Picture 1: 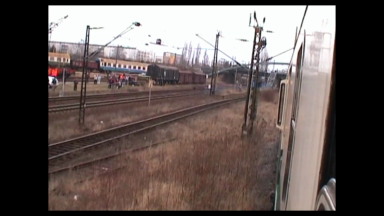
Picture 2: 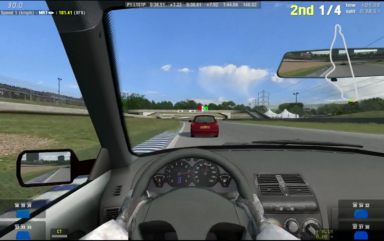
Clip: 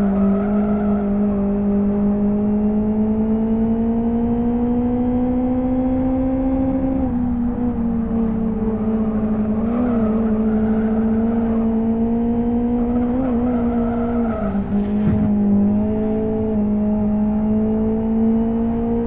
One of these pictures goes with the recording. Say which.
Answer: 2